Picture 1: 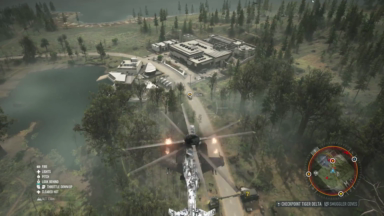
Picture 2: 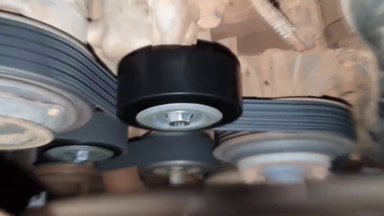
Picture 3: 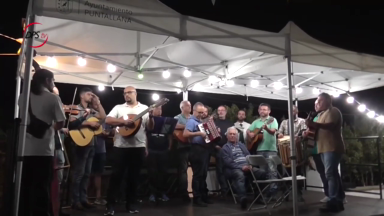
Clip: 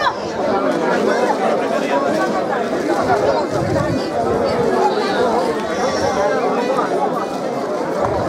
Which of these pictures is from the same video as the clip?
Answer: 3